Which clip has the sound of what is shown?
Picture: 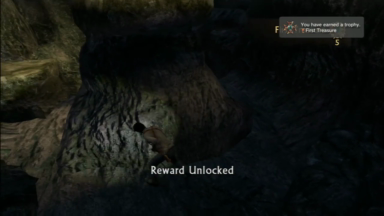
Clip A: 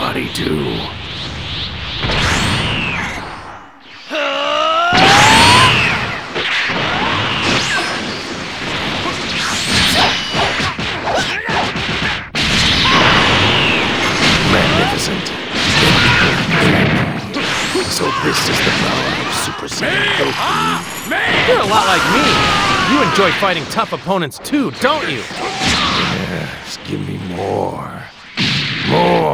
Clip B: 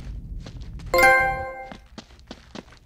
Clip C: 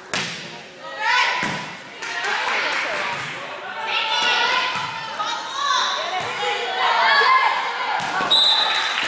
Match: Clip B